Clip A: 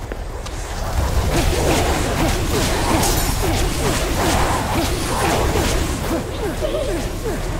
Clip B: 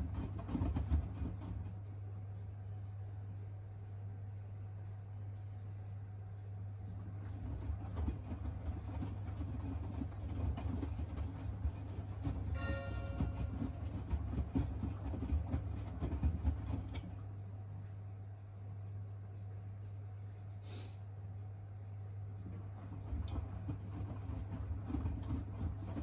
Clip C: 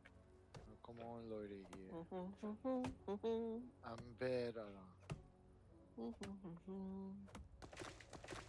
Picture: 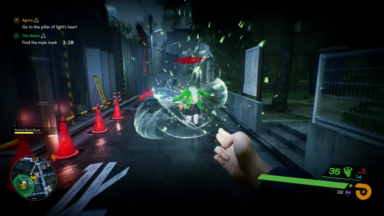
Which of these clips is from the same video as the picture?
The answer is A